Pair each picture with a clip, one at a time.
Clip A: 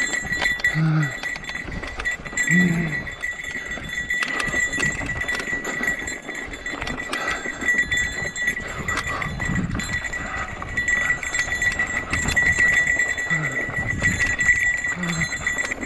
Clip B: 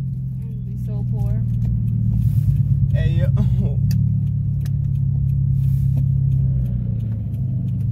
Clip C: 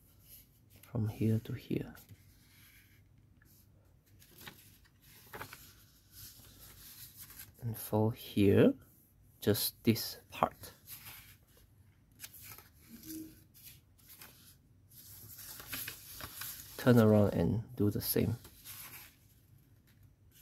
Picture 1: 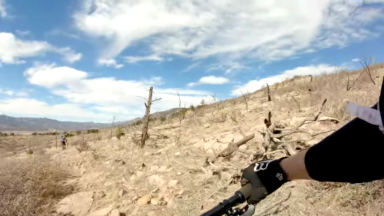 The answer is A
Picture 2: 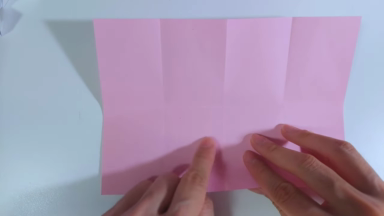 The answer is C